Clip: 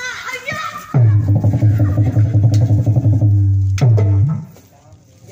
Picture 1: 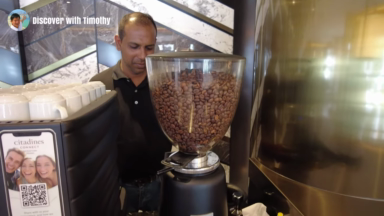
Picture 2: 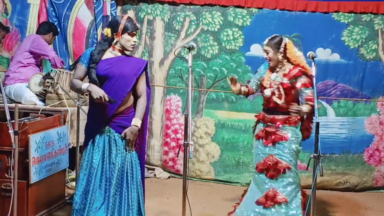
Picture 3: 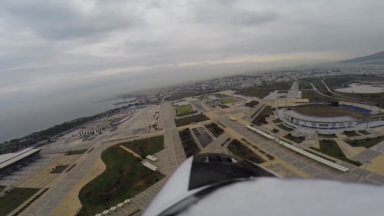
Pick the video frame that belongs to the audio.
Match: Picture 2